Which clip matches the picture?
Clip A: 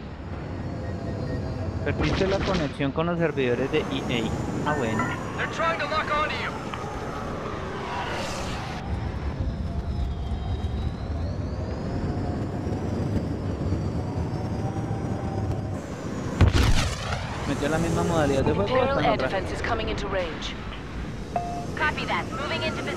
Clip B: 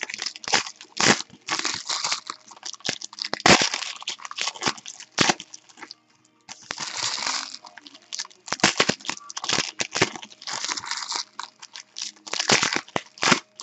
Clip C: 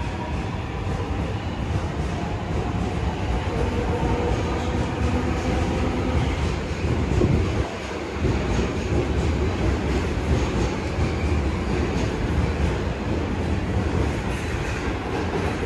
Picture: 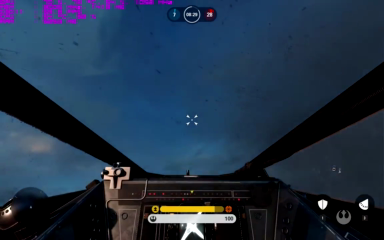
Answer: A